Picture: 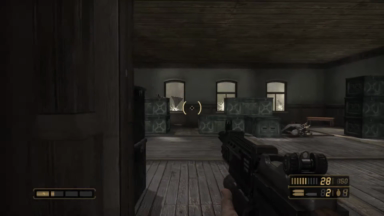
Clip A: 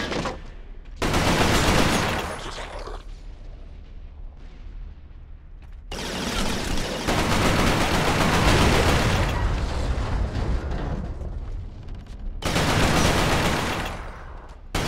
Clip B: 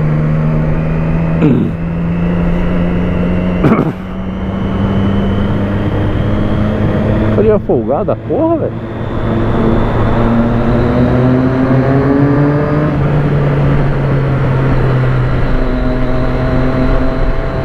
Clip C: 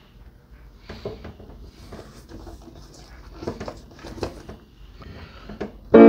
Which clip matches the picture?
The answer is A